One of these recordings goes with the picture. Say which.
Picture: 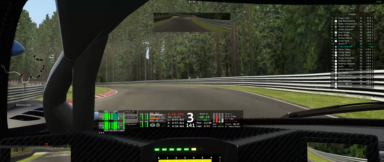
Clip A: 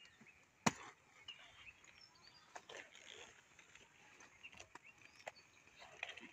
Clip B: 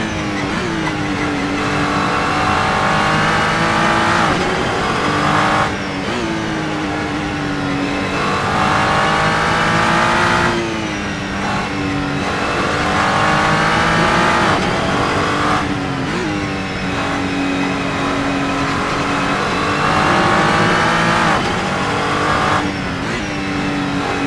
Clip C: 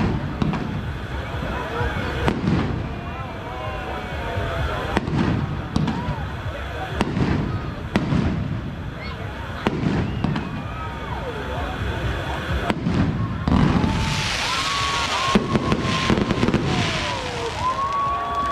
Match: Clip B